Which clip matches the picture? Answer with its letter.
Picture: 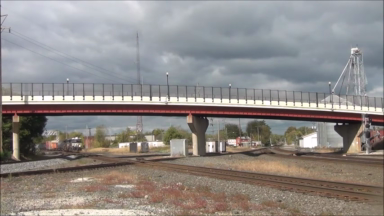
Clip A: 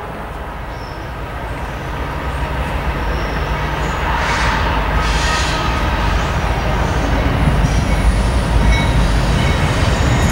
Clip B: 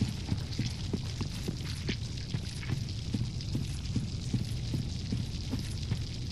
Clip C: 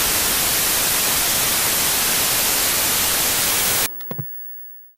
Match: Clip A